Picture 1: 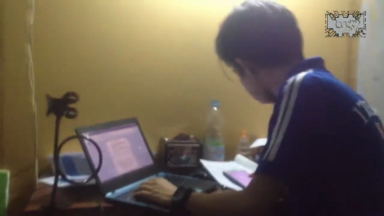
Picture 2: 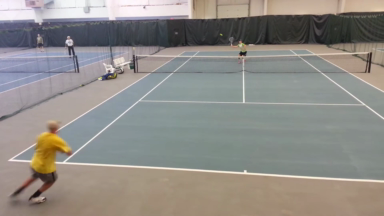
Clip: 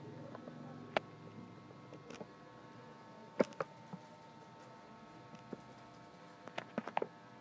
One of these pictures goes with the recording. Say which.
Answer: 1